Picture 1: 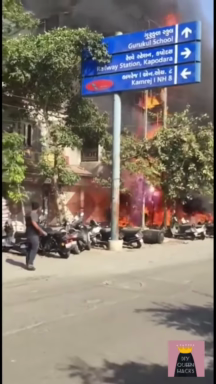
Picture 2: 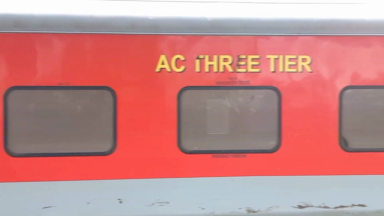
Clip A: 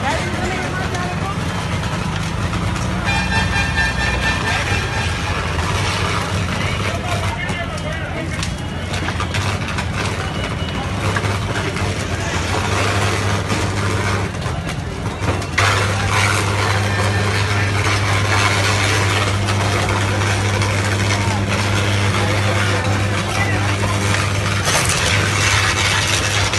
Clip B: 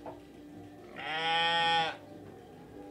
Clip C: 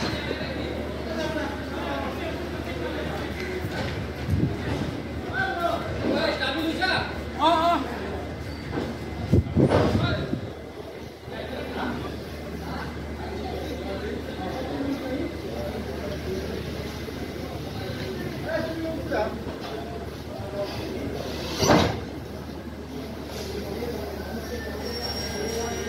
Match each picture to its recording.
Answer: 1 A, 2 C